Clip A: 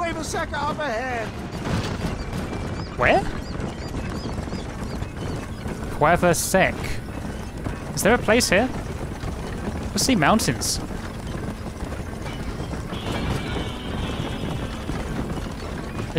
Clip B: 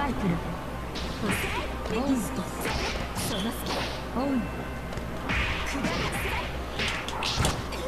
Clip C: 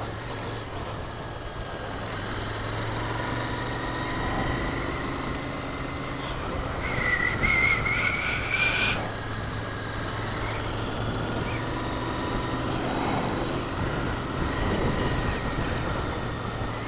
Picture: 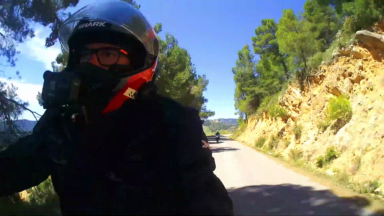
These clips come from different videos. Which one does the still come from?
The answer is C